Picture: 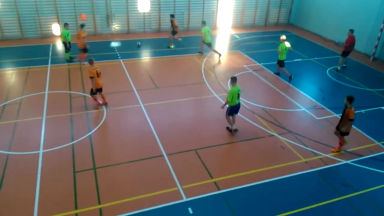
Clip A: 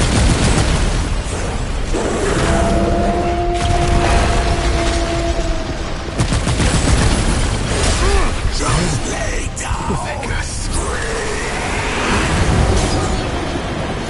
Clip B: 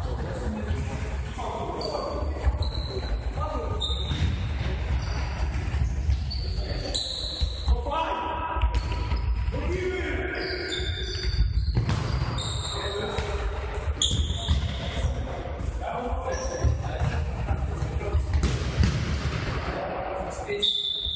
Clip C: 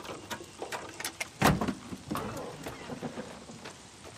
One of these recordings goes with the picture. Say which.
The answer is B